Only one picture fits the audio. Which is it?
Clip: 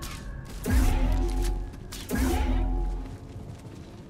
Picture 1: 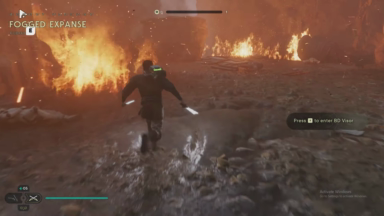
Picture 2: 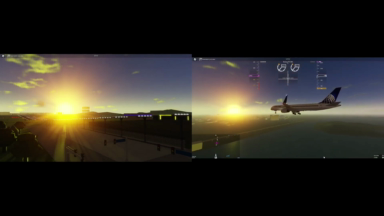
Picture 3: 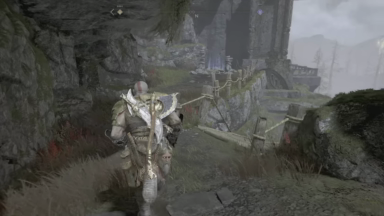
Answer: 1